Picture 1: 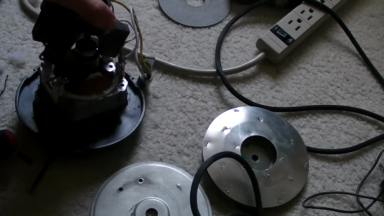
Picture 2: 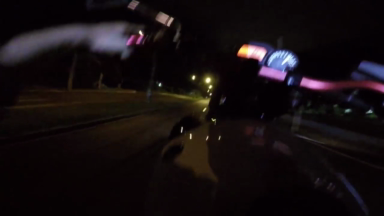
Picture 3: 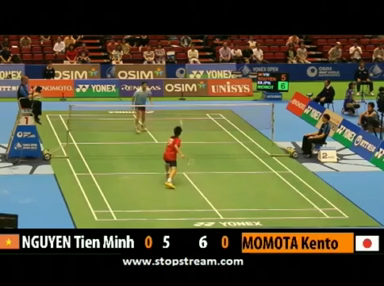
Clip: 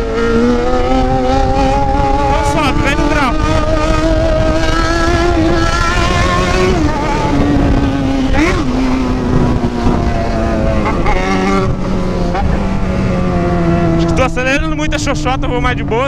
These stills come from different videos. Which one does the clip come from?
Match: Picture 2